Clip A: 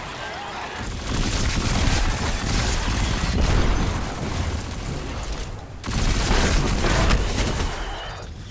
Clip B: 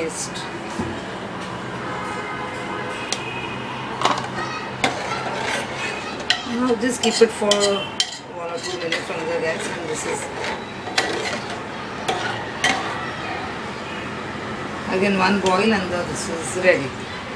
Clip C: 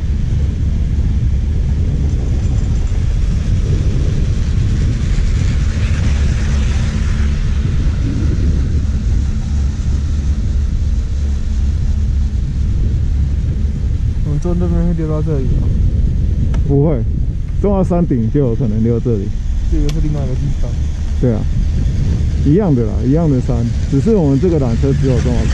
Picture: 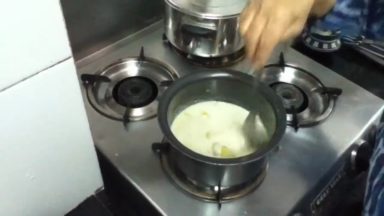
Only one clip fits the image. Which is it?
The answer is B